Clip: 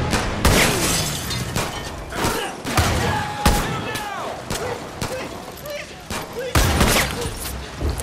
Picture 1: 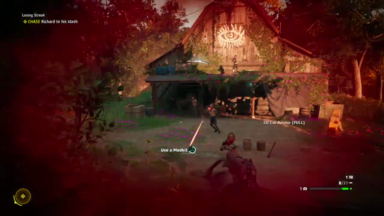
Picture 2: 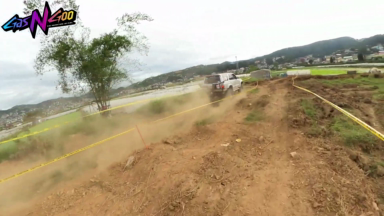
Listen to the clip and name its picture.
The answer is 1